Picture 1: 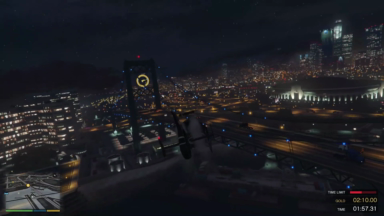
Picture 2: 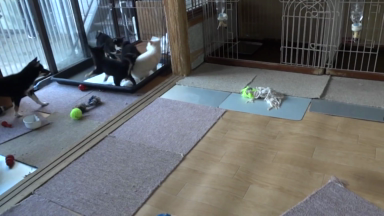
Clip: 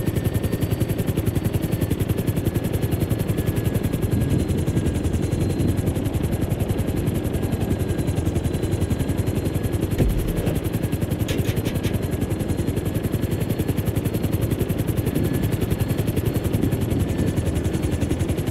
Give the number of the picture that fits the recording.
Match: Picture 1